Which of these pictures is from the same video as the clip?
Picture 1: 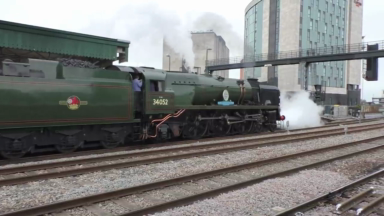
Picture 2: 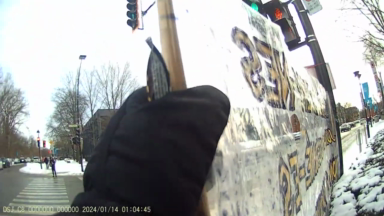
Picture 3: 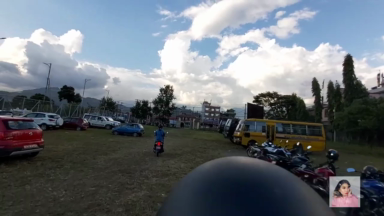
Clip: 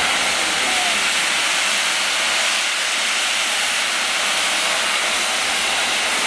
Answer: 1